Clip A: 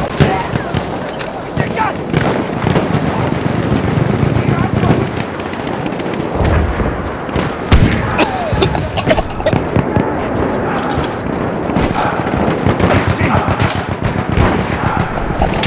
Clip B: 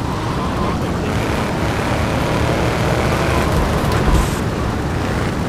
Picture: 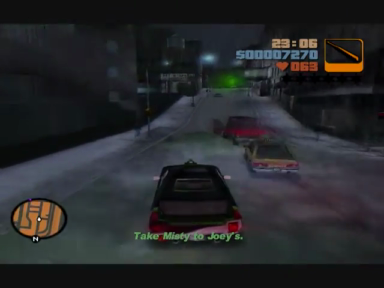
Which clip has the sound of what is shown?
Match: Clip B